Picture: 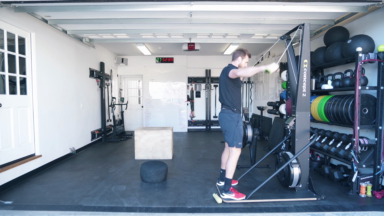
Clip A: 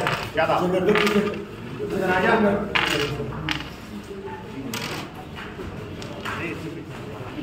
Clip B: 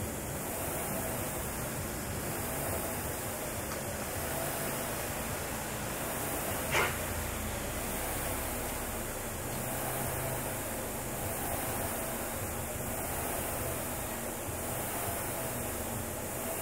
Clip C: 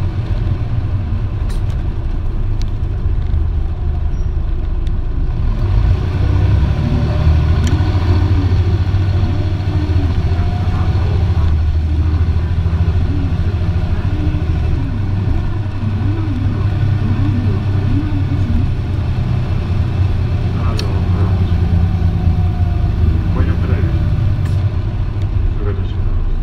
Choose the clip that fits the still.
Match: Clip B